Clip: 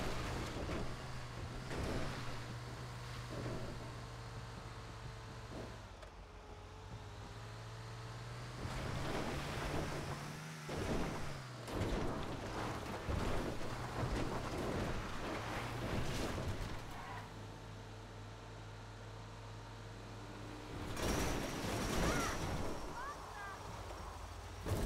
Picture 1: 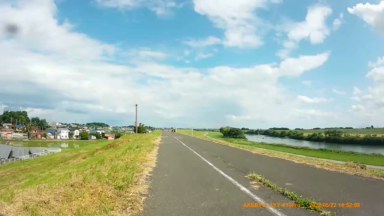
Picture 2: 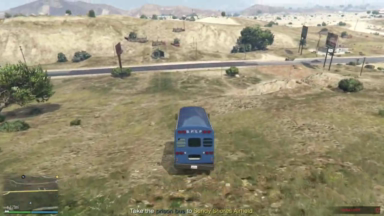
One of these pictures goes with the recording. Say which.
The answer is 2